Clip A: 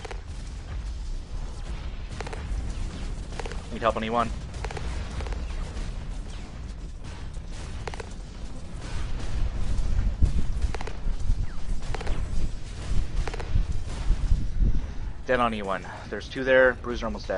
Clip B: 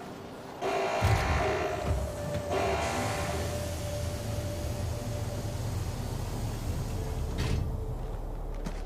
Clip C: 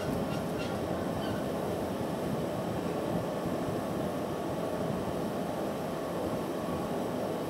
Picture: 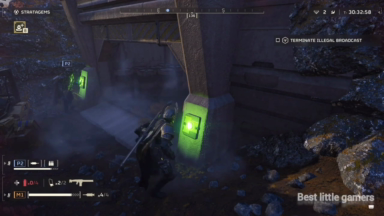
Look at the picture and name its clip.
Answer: B